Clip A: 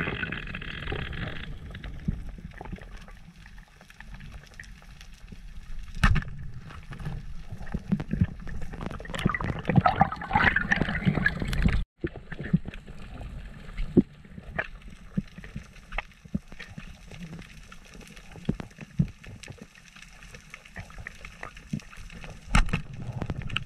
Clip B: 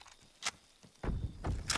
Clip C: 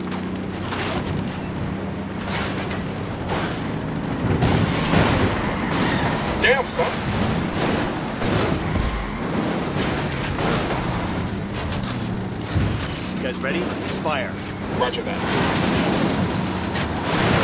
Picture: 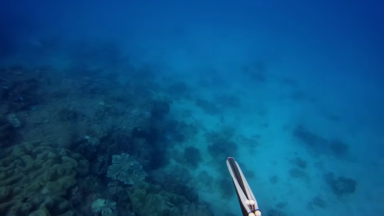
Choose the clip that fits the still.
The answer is A